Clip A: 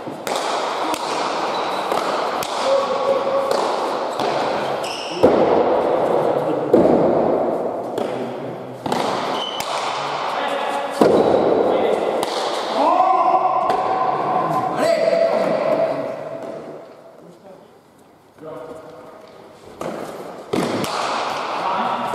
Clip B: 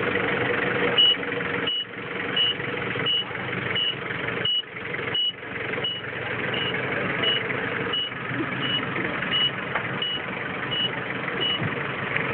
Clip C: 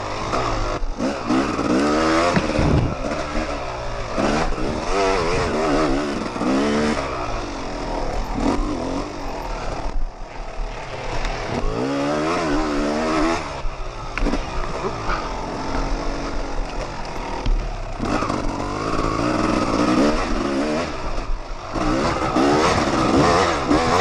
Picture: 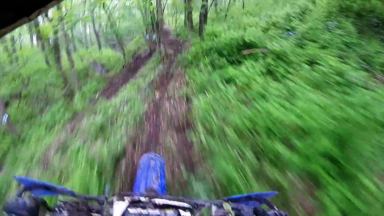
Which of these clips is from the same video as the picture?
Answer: C